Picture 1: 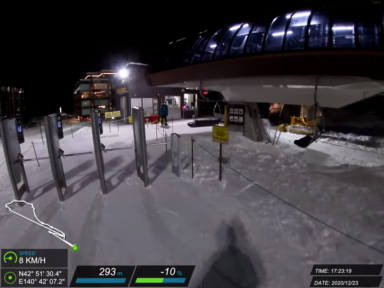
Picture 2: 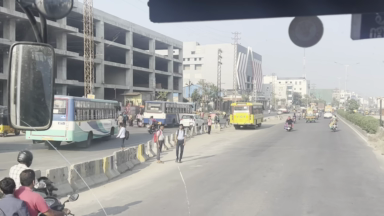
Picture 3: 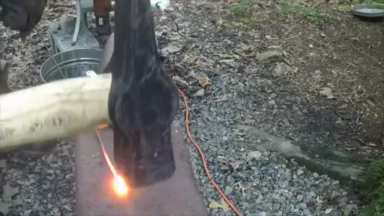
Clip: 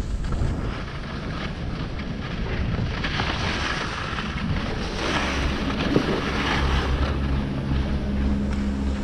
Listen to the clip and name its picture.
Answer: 1